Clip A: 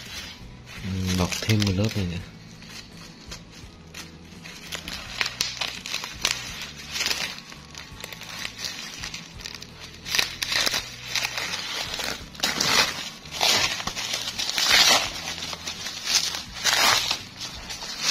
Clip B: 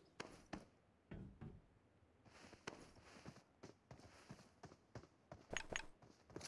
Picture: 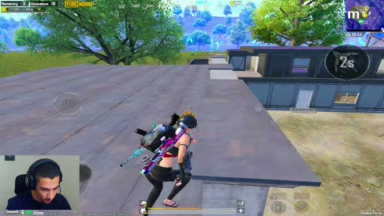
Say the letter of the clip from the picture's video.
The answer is B